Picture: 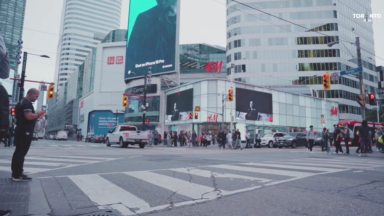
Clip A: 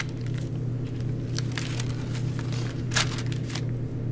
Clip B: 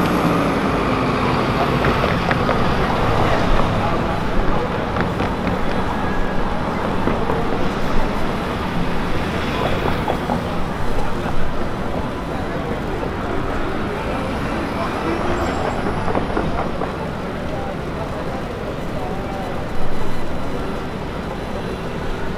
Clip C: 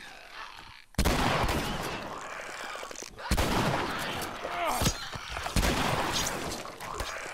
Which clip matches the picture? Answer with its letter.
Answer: B